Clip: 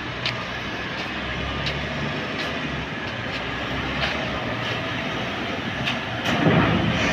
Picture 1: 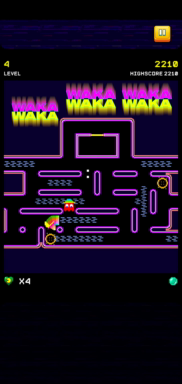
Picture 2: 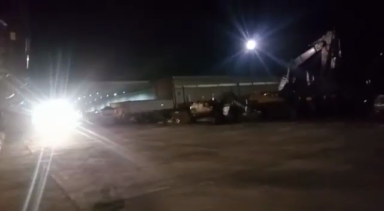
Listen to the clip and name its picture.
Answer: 2